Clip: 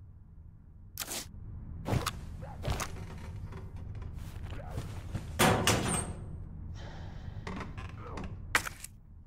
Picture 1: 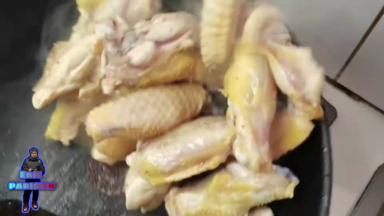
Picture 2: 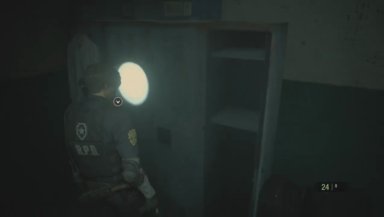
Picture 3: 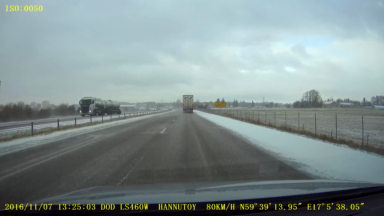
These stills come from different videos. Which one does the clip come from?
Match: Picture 2